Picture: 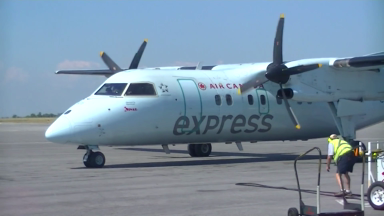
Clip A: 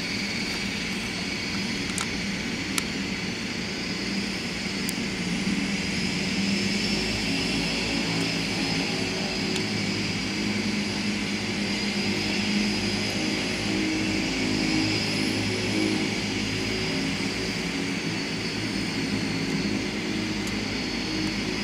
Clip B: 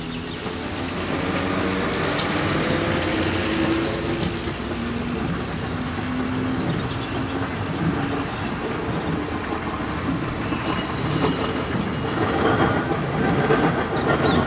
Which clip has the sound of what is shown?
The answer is A